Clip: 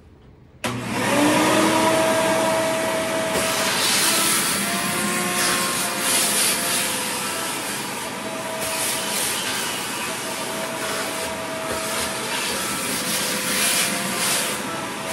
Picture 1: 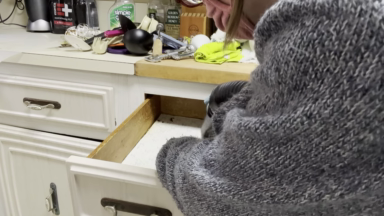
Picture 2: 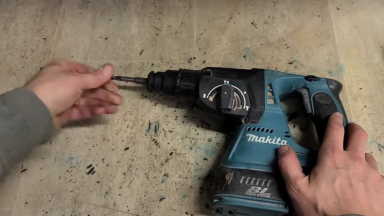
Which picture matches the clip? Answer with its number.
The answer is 1